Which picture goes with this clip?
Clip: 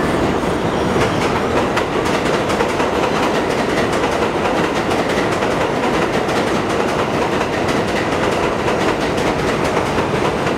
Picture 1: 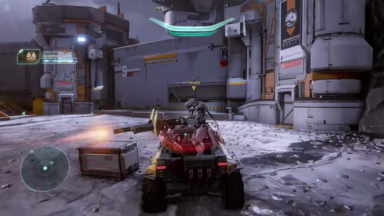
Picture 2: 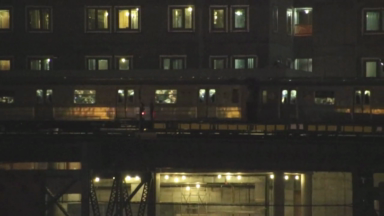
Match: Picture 2